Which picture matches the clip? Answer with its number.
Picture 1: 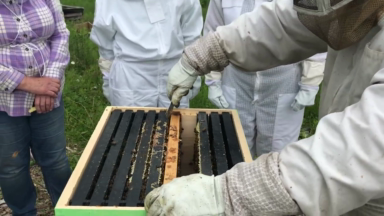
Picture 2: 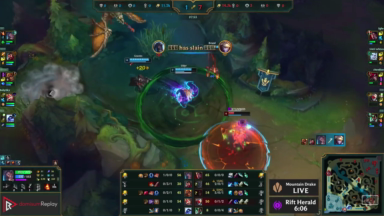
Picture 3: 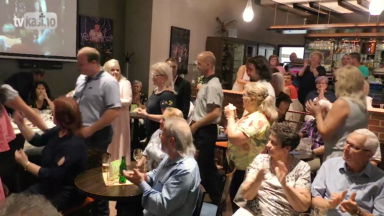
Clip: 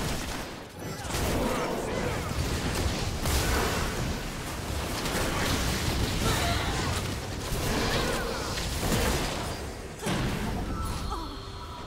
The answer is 2